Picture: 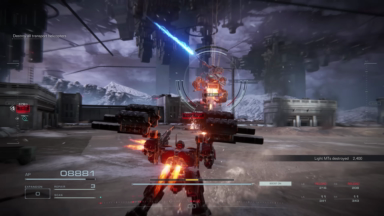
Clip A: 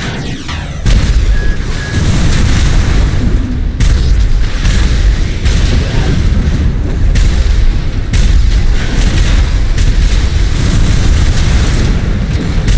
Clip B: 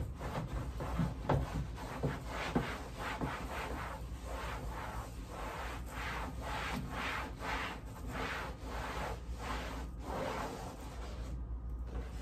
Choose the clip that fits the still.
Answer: A